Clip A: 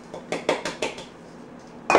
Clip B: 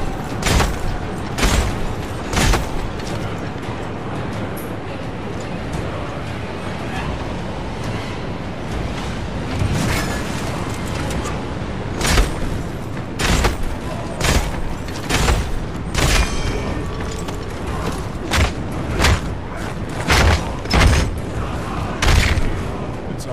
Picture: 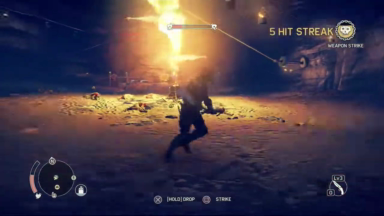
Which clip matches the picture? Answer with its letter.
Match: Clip B